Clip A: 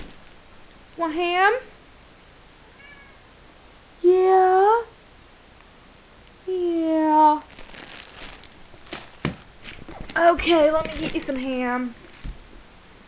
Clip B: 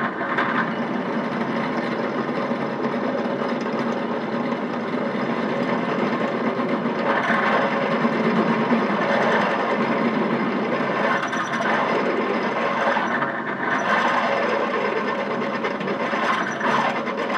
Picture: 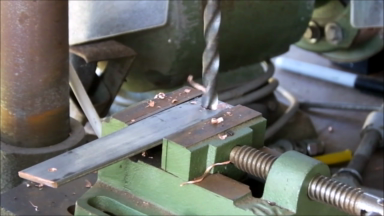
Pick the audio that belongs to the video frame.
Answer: B